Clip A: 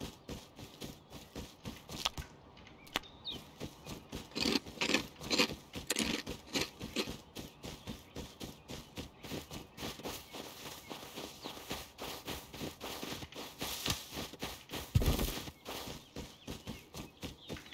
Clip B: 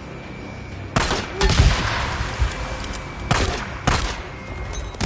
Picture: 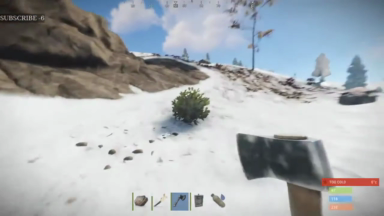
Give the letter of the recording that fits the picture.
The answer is A